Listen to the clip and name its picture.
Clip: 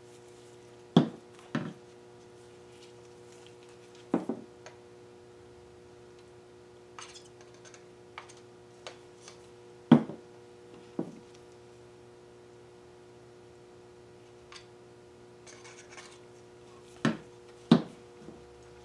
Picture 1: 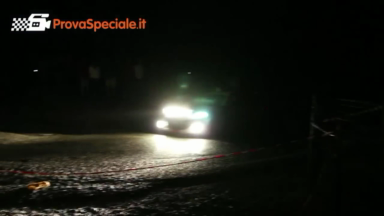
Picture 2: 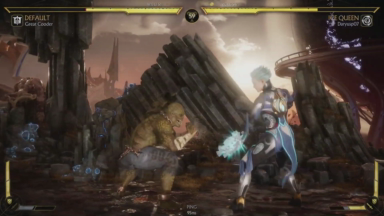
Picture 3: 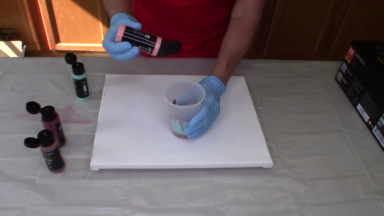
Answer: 3